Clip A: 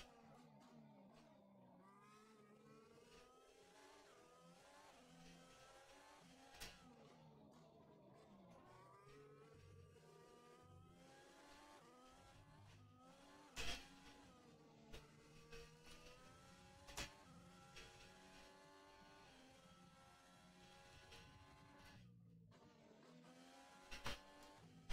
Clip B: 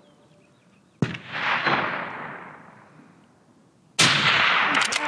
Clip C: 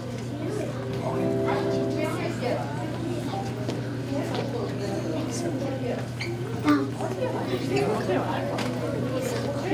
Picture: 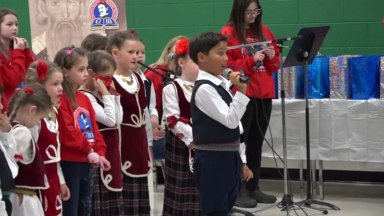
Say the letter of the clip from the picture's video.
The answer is C